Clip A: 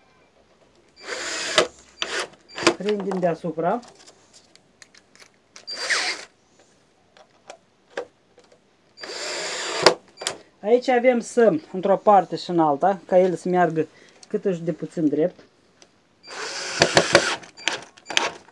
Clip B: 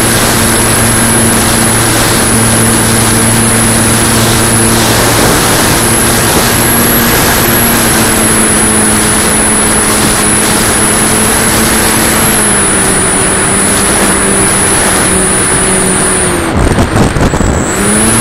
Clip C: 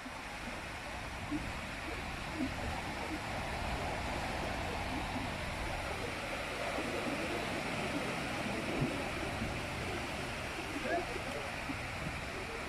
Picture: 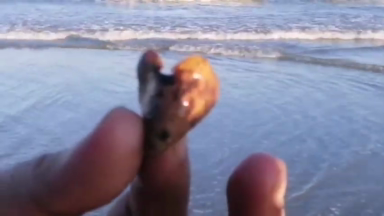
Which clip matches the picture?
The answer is C